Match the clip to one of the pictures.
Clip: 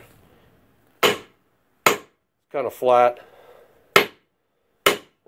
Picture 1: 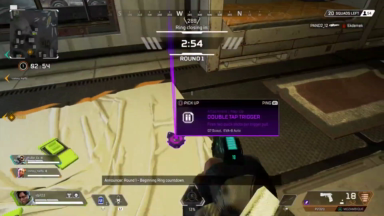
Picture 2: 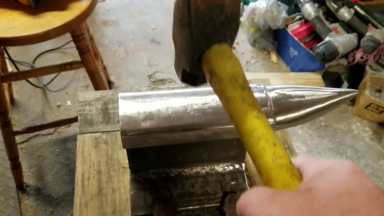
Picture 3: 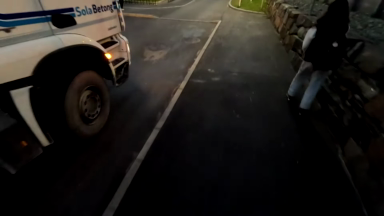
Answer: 2